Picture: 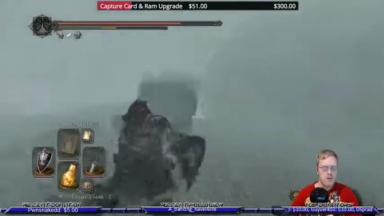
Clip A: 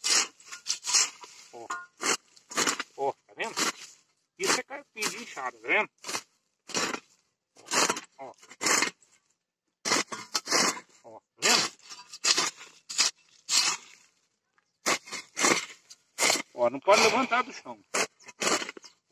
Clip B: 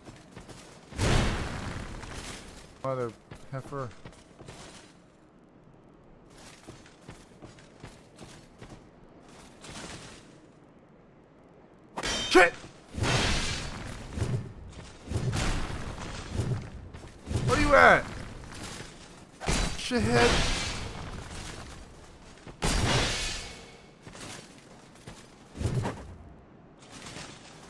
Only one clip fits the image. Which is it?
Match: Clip B